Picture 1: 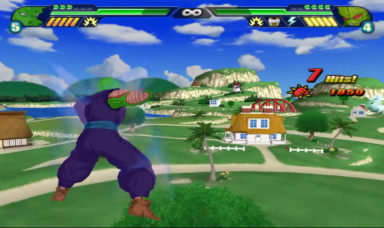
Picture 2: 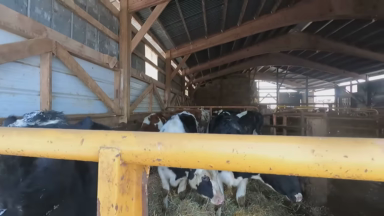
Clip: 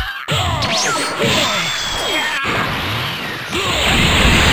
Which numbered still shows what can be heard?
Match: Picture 1